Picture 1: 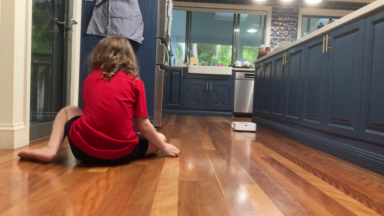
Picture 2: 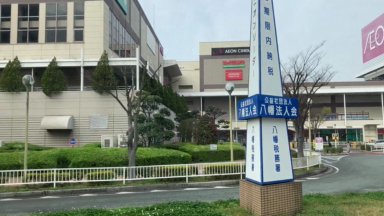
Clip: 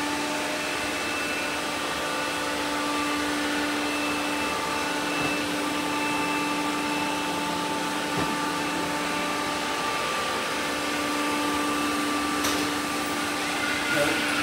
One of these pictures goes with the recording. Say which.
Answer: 1